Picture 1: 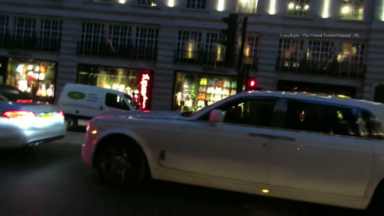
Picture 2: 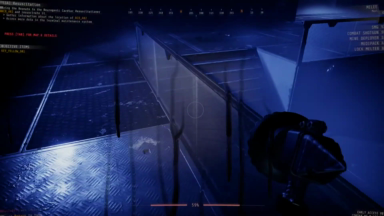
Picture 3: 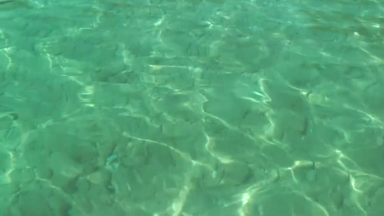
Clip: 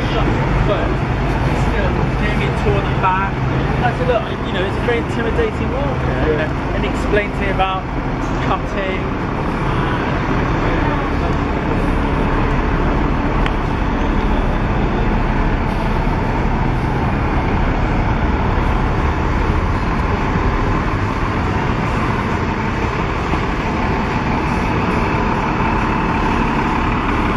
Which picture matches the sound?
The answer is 1